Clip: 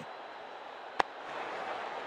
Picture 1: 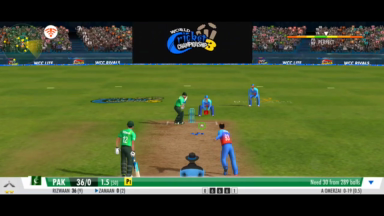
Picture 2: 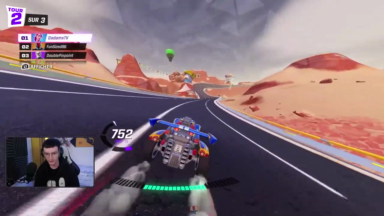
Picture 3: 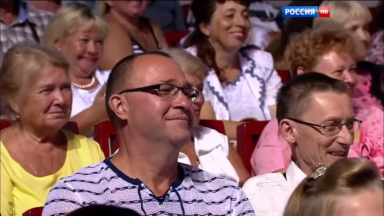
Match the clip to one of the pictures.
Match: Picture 1